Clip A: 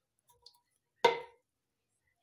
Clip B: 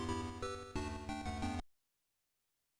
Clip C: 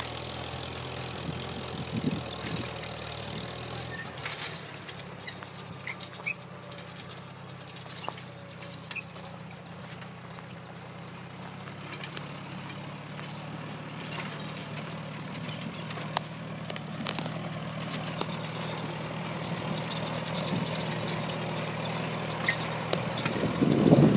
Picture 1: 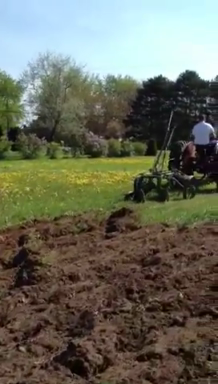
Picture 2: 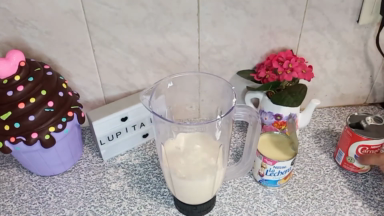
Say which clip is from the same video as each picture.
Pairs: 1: C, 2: A